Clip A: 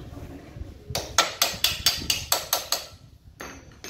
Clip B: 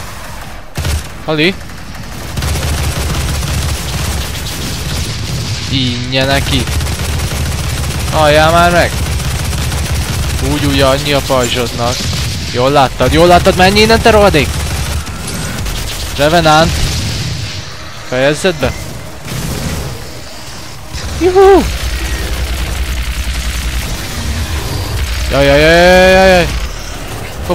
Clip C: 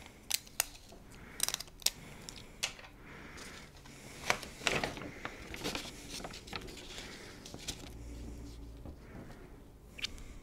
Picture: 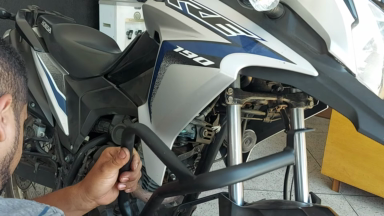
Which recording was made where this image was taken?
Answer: A